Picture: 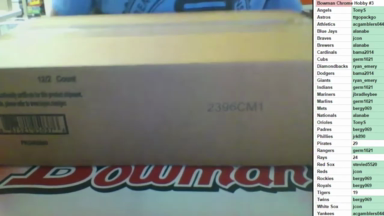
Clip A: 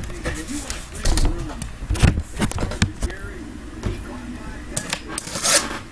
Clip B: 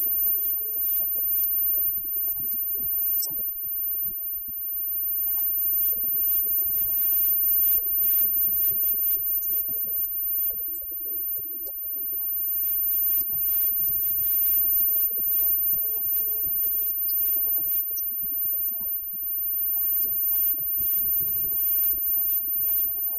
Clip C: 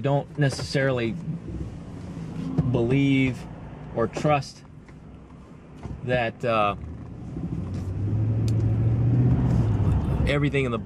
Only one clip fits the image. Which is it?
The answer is A